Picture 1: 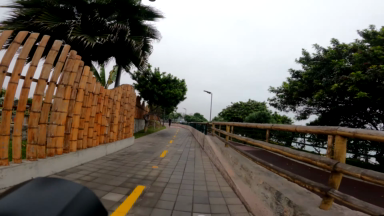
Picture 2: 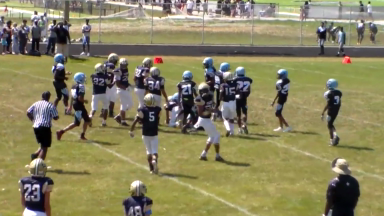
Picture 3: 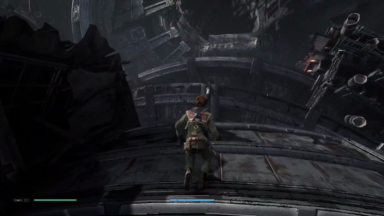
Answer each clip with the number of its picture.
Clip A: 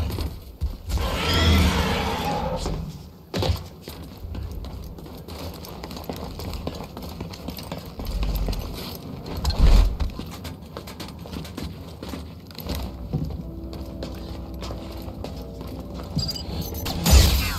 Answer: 3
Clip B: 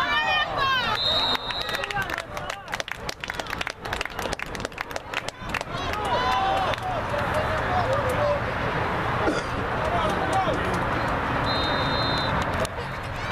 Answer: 2